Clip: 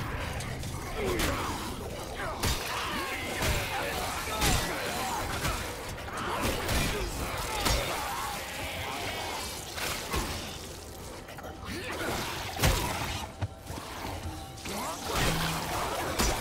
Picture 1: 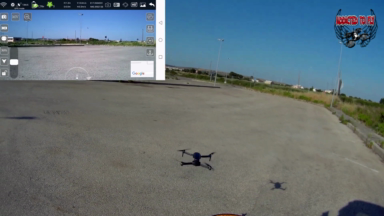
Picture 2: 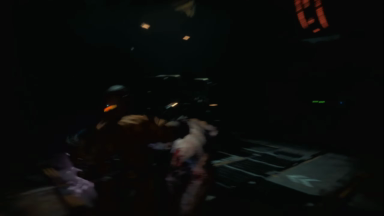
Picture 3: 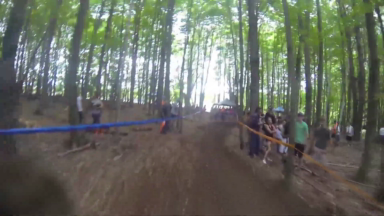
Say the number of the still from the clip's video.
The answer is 2